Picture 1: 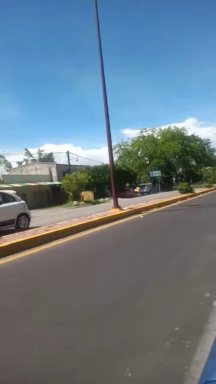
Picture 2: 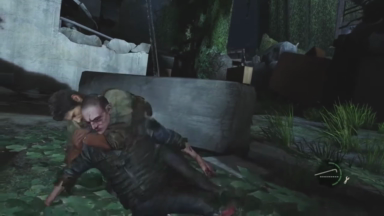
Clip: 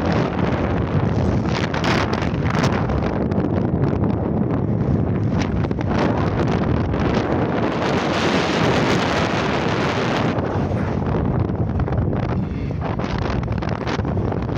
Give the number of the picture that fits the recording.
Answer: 1